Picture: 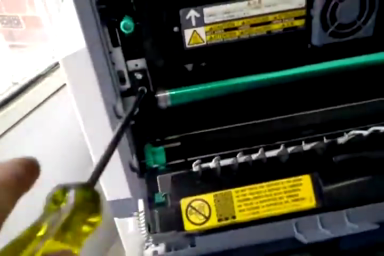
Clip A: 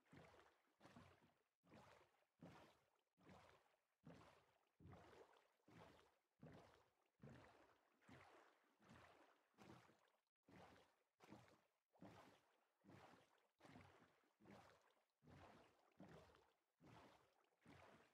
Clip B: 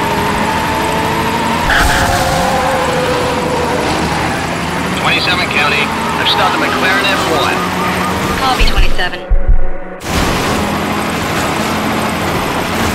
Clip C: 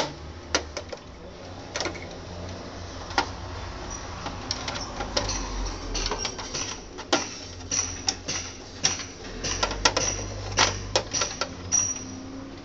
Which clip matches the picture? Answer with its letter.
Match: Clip C